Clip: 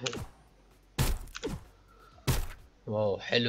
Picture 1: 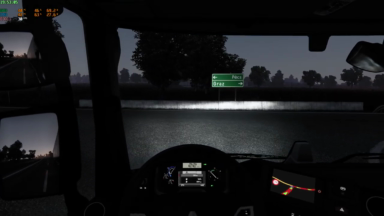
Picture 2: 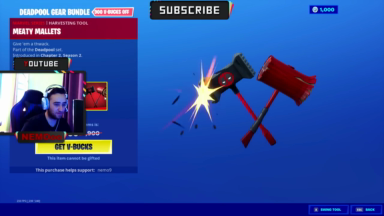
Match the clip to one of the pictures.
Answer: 2